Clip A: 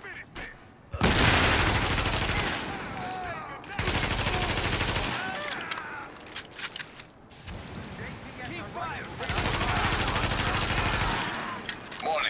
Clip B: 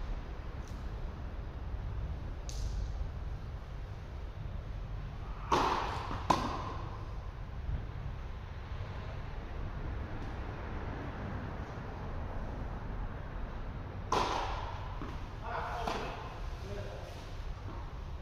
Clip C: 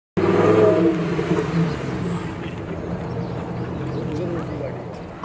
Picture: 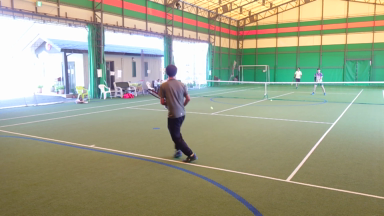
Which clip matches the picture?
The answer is B